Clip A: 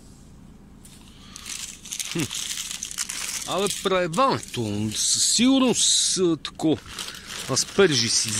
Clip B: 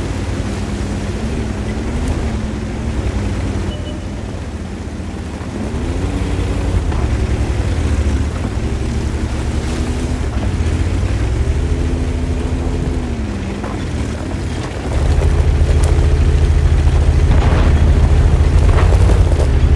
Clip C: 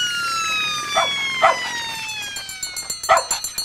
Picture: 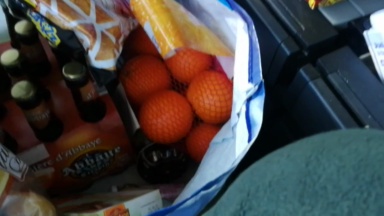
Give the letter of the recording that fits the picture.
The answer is A